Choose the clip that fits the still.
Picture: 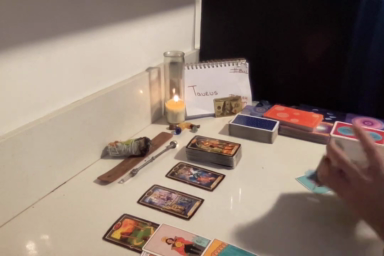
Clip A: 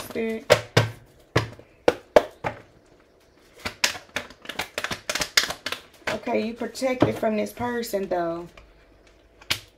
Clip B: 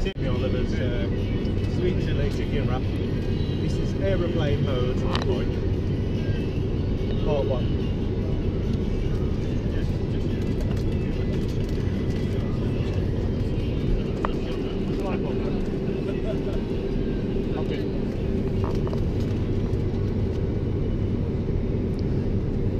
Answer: A